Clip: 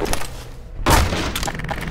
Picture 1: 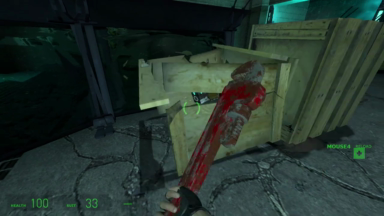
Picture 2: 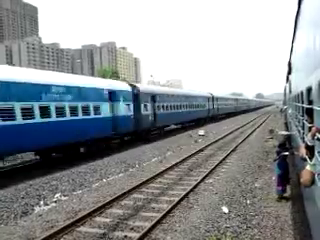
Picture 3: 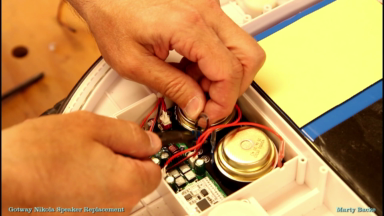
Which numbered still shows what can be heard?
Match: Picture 1